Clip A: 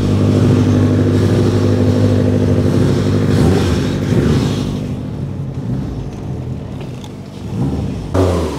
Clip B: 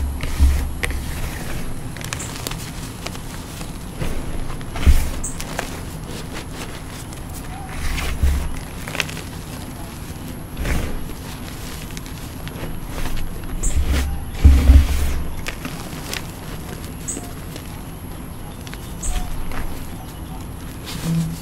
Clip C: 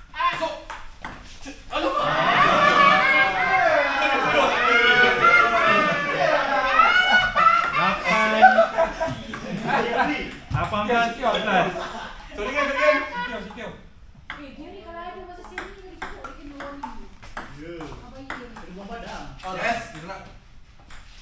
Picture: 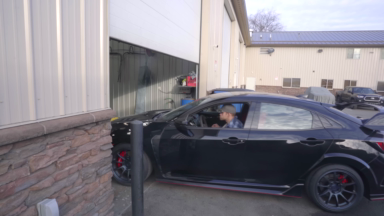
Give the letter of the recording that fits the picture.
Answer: A